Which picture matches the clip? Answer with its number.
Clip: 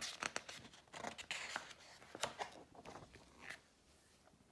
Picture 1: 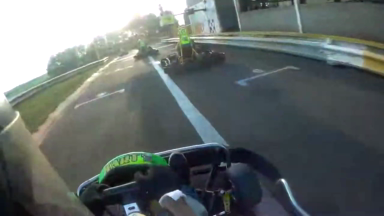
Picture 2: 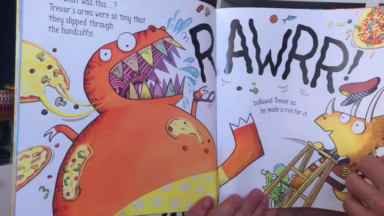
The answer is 2